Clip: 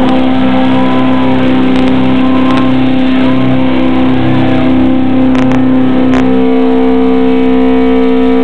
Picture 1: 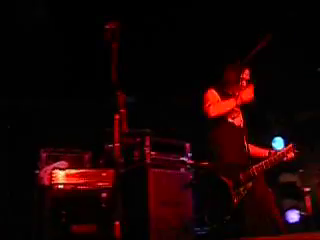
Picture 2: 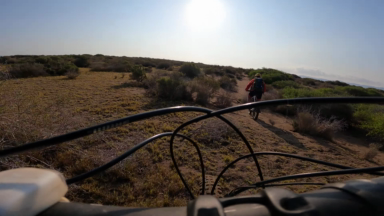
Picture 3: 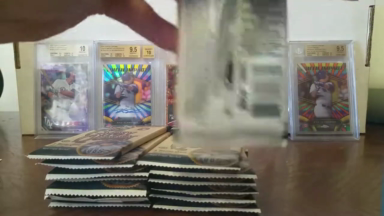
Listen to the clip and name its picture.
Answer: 1